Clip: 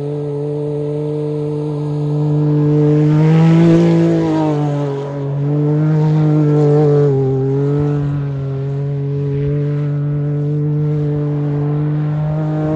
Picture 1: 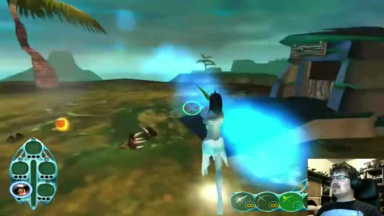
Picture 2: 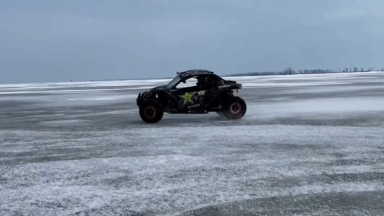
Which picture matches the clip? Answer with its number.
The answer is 2